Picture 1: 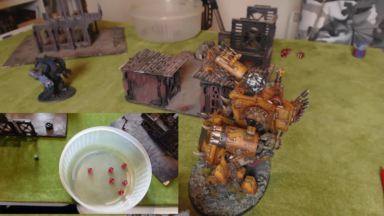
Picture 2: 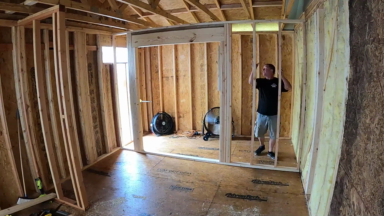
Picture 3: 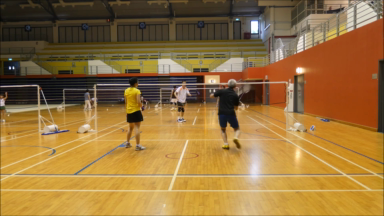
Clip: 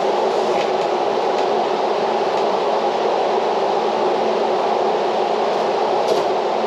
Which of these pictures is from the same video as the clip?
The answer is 2